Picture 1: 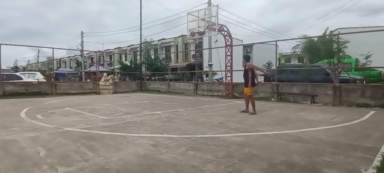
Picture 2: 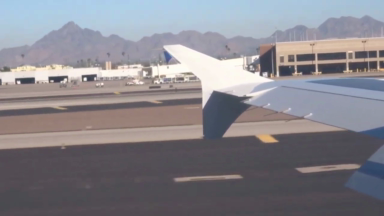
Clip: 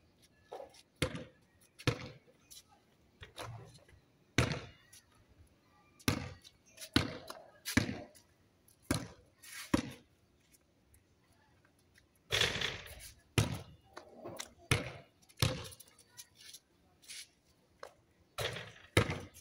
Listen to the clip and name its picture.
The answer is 1